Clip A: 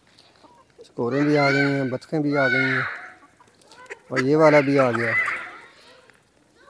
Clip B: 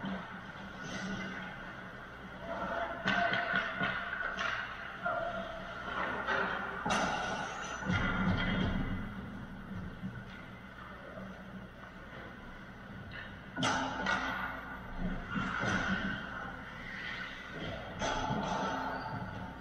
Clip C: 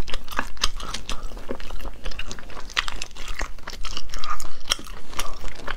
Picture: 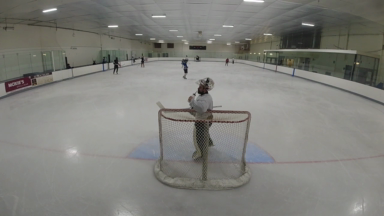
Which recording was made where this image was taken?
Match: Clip B